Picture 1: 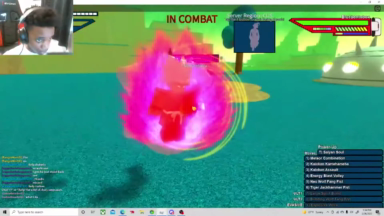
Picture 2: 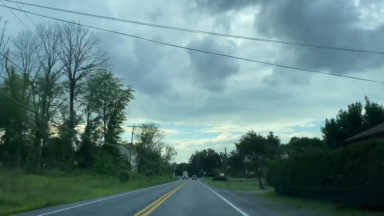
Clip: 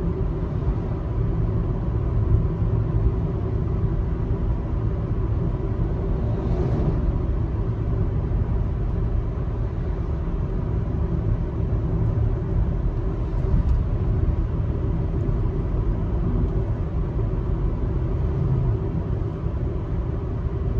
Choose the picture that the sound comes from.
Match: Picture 2